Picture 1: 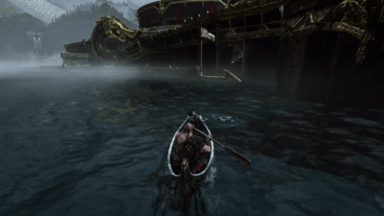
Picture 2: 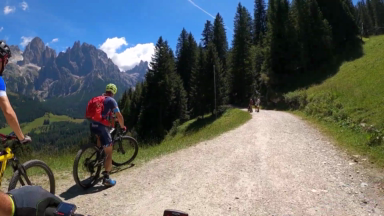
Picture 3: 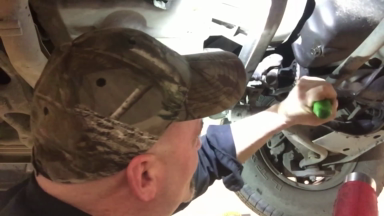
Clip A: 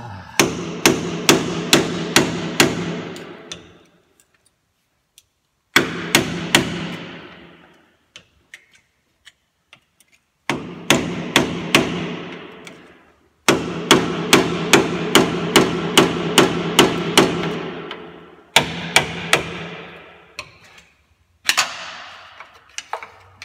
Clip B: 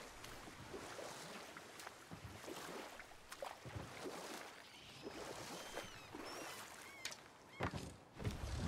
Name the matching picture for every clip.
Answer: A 3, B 1